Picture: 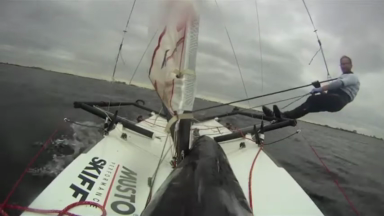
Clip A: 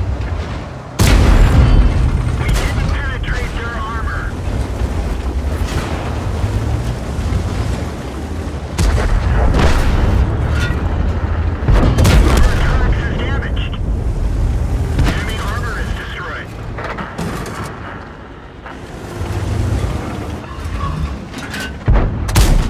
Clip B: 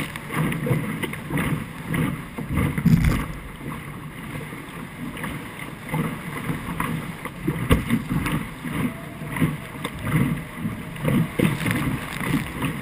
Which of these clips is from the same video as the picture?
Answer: B